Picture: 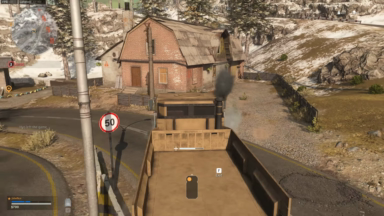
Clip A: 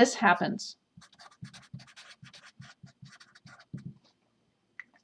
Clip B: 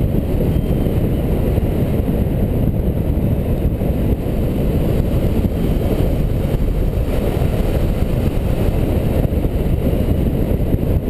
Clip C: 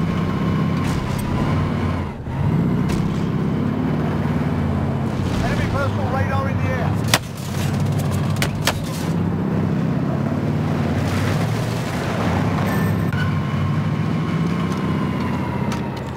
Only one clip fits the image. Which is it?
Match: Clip C